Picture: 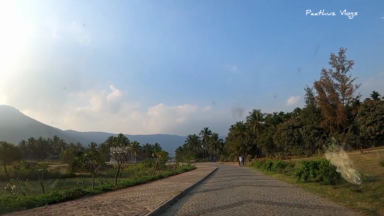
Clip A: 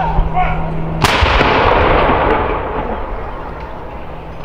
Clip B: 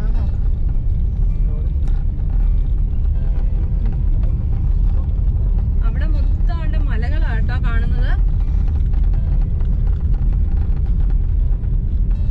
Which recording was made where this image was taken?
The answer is B